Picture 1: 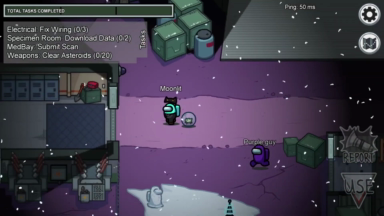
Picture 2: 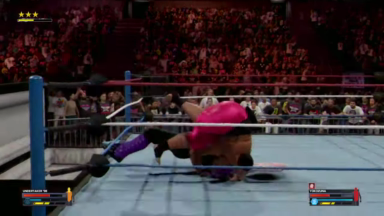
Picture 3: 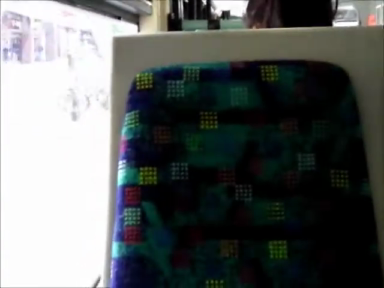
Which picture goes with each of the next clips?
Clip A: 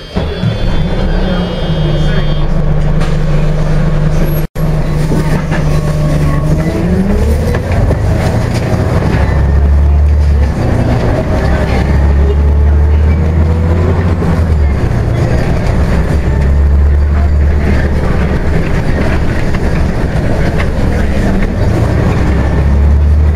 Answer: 3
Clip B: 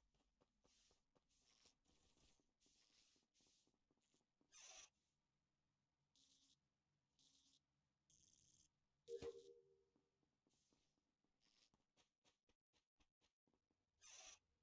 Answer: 1